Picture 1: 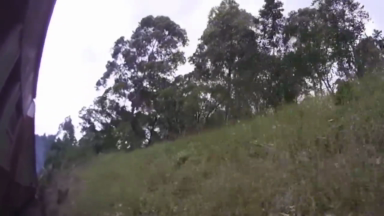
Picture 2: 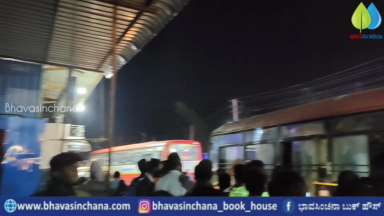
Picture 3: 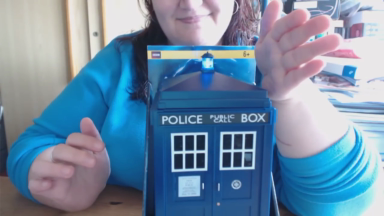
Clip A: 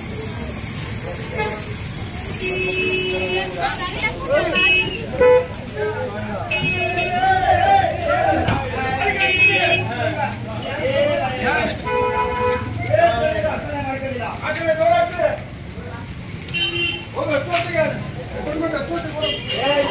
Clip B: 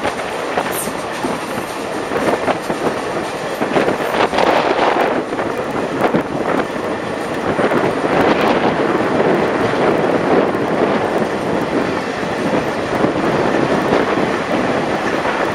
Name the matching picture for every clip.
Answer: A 2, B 1